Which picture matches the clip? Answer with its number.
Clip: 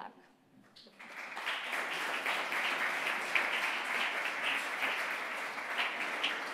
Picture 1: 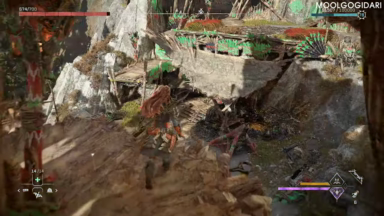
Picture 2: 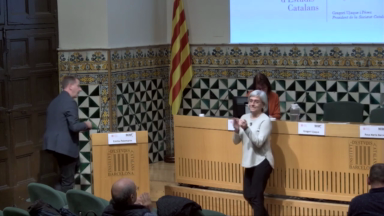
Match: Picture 2